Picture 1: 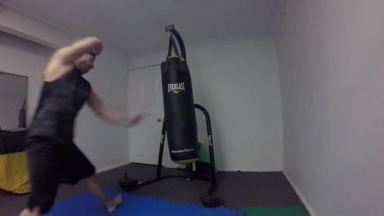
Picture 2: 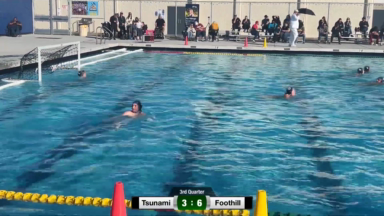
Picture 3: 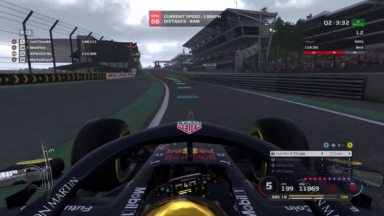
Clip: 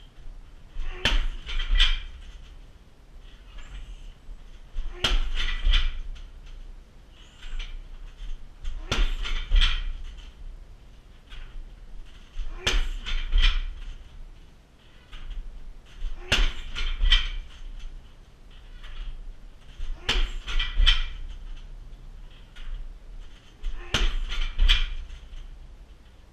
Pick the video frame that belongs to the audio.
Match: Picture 1